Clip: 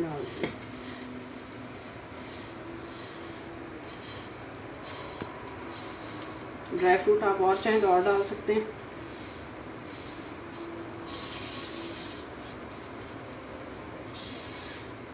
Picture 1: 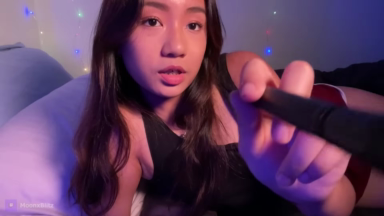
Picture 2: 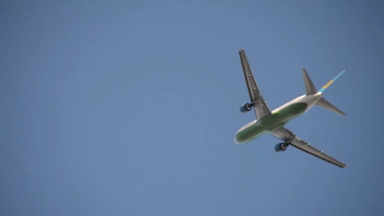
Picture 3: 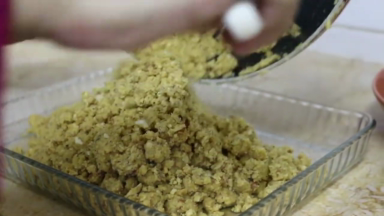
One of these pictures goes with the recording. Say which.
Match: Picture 3